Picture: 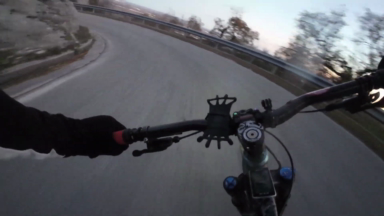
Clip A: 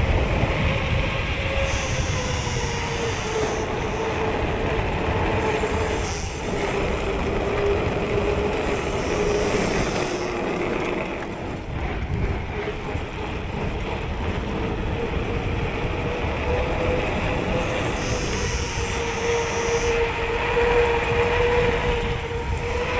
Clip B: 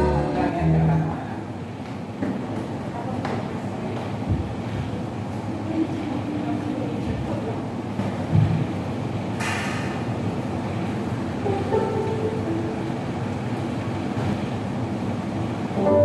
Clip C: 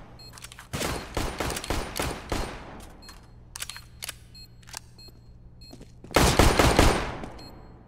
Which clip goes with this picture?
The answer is A